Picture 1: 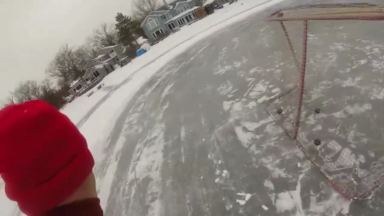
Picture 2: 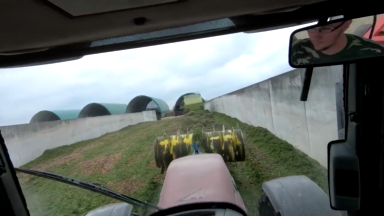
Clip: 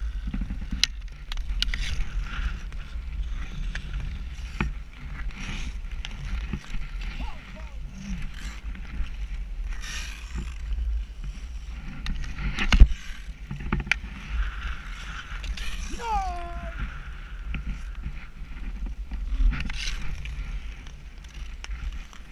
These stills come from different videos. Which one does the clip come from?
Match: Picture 1